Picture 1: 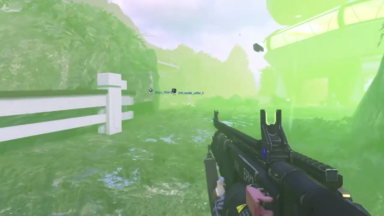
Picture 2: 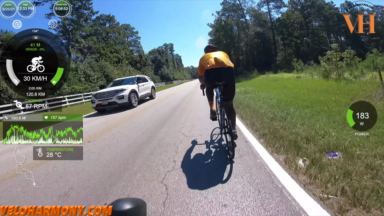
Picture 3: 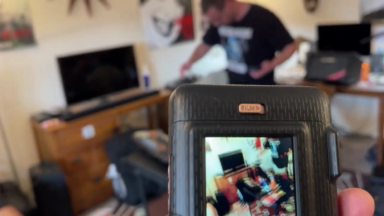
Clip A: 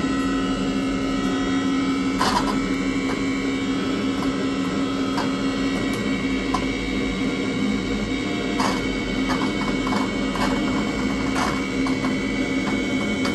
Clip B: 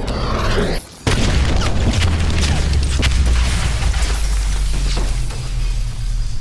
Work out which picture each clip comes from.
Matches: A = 3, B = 1